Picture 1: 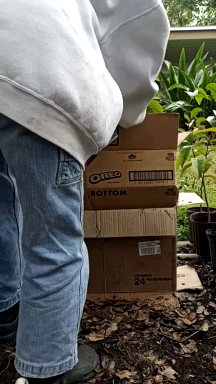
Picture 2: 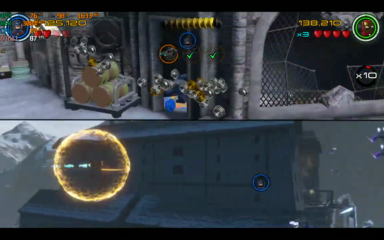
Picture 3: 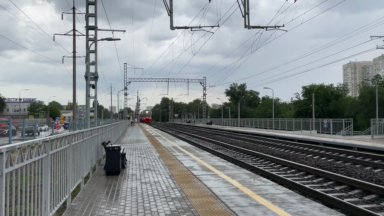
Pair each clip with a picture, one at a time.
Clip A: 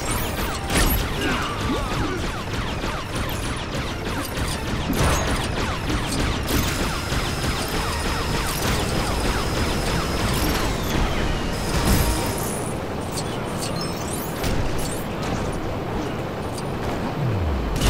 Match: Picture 2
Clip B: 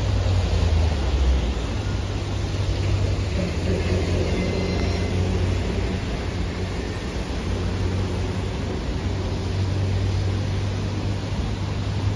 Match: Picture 3